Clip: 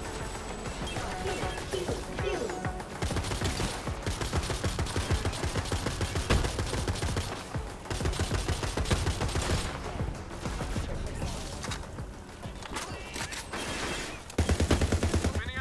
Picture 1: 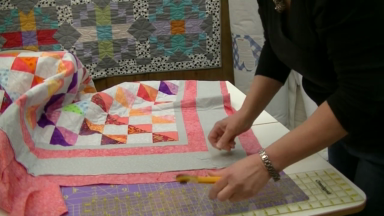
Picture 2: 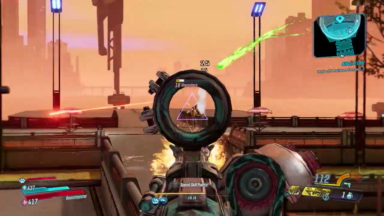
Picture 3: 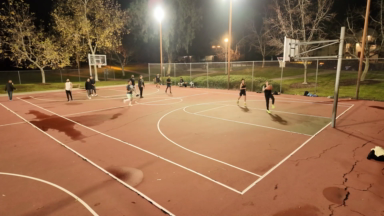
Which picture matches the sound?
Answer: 2